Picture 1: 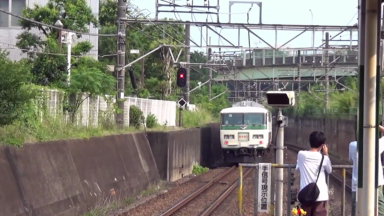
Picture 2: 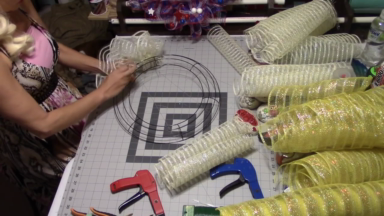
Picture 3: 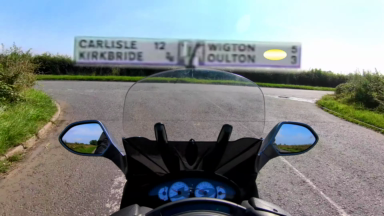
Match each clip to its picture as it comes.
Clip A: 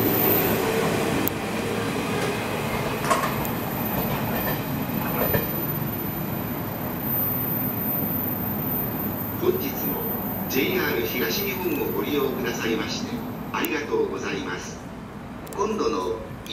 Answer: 1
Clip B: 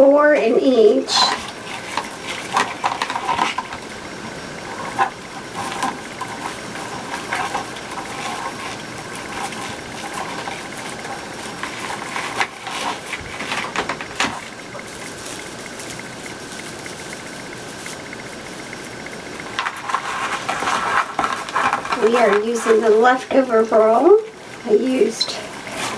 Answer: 2